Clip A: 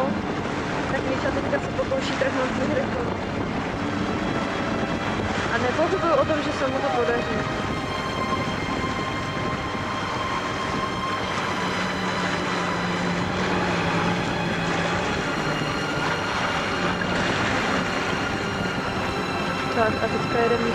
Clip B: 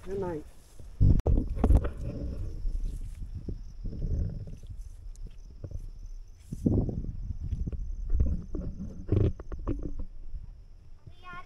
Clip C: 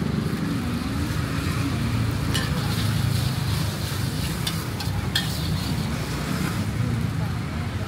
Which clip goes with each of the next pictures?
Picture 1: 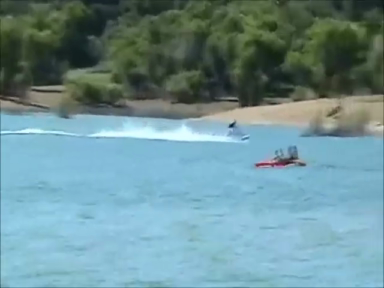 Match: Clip A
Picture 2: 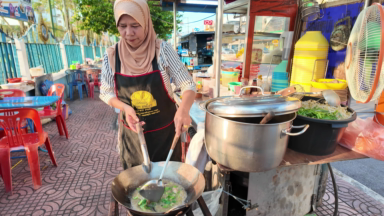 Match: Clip C